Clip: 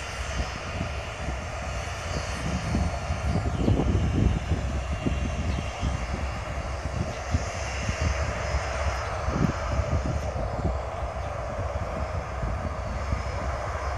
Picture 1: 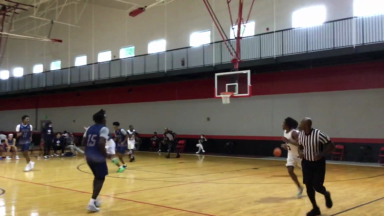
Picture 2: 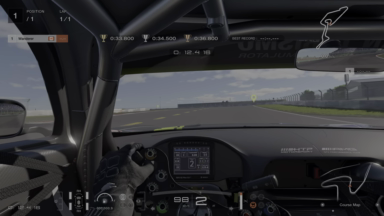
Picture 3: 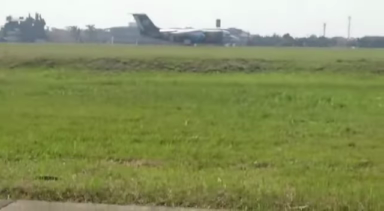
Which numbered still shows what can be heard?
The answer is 3